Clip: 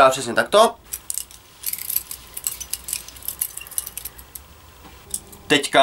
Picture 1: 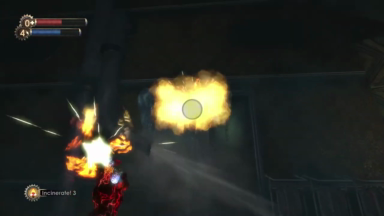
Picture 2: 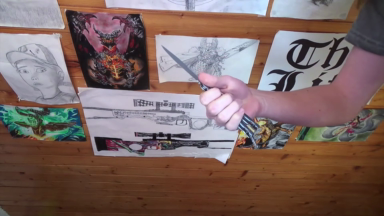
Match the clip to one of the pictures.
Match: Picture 2